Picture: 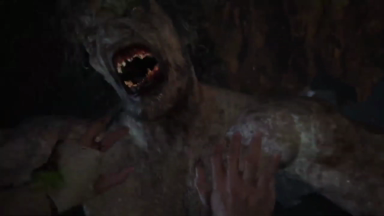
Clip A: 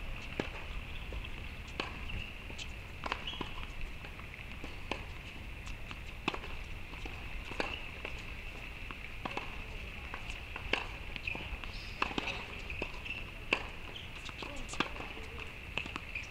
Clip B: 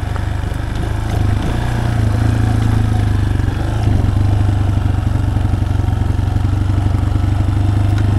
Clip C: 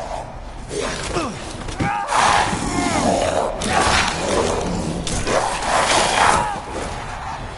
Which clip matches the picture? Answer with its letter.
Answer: C